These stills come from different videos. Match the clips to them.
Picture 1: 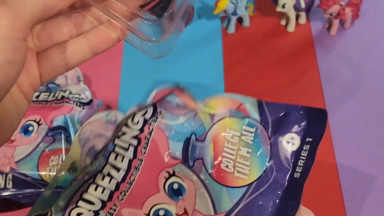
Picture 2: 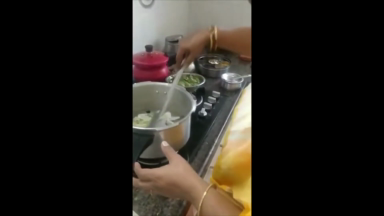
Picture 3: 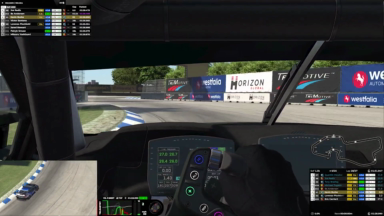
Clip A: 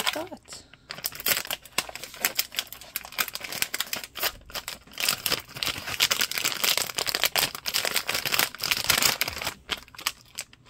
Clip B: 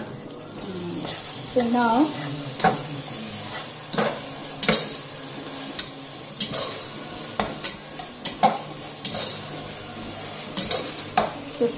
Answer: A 1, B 2